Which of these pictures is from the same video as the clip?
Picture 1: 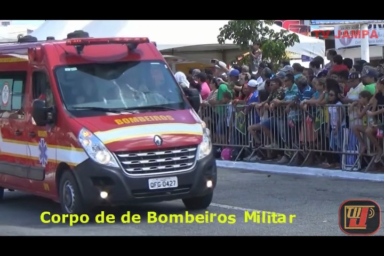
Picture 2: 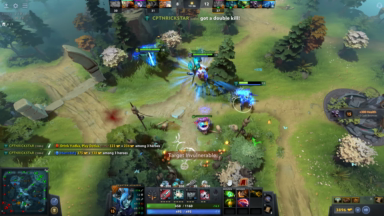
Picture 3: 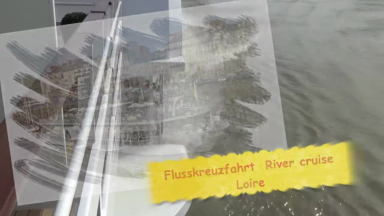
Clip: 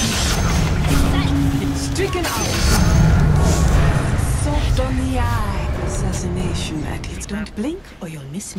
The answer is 2